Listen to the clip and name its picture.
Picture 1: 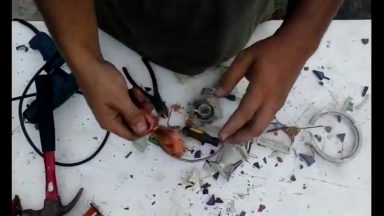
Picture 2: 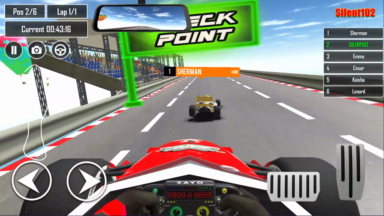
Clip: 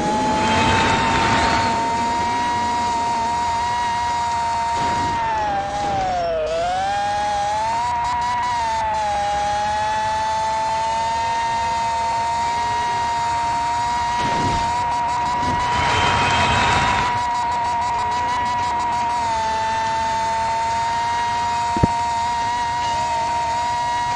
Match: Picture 2